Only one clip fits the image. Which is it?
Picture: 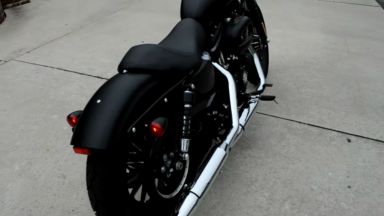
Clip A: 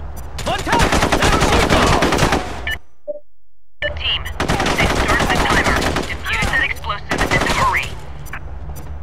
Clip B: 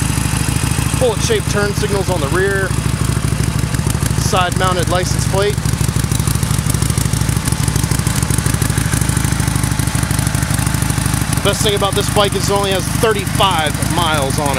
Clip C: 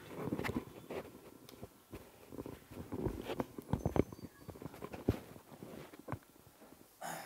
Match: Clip B